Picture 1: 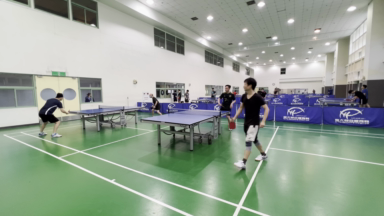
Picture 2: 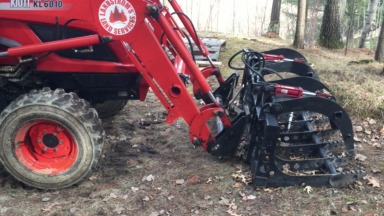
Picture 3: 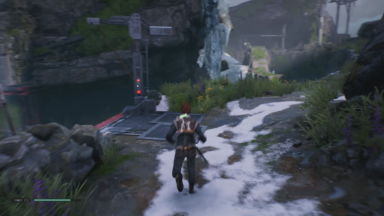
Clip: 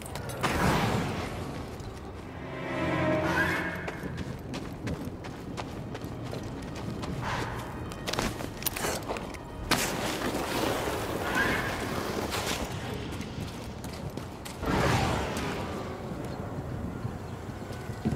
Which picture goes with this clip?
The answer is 3